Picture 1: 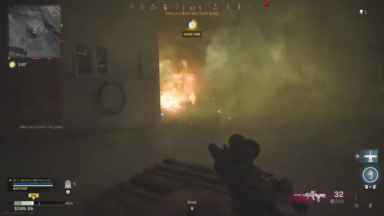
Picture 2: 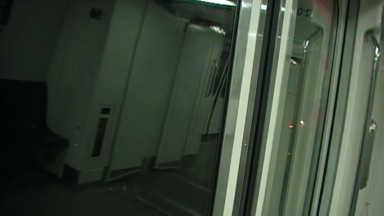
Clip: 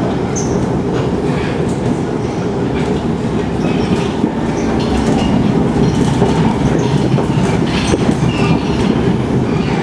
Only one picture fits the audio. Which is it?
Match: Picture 2